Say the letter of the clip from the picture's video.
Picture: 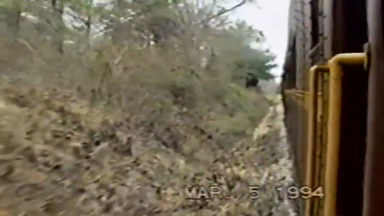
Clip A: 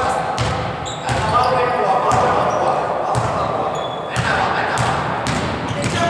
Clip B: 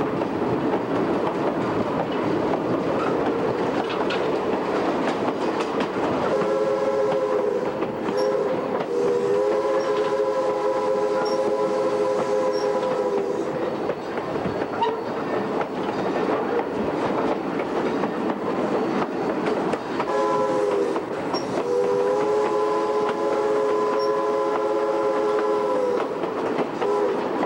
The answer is B